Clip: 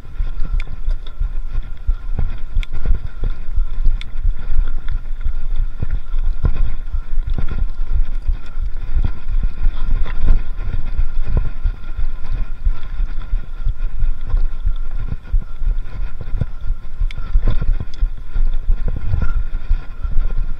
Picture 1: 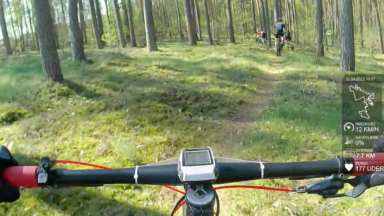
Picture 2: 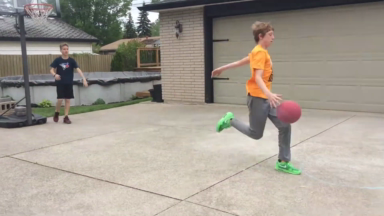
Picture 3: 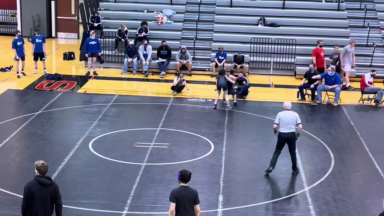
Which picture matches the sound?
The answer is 1